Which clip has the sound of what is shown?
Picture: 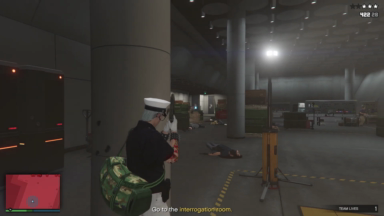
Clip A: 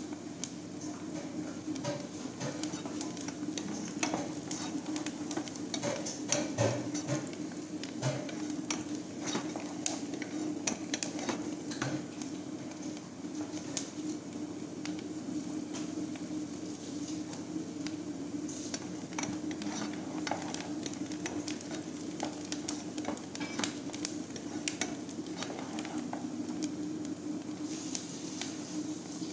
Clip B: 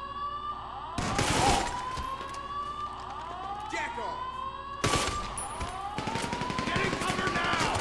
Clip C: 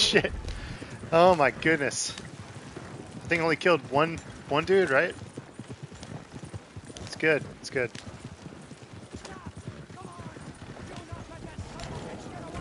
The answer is B